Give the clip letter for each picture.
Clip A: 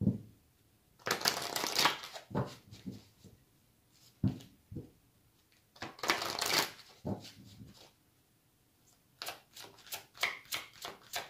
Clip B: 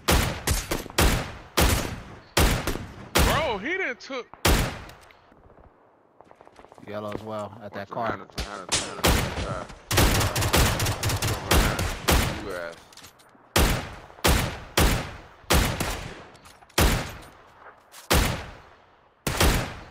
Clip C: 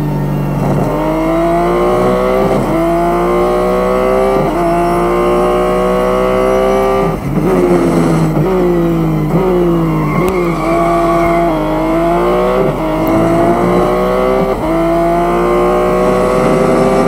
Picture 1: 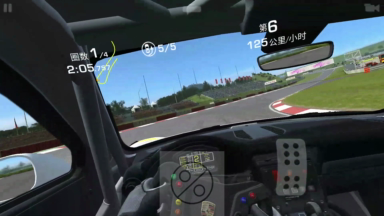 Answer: C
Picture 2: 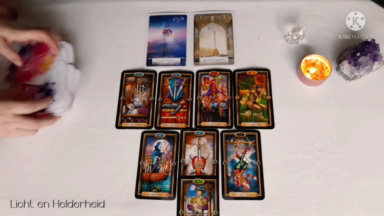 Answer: A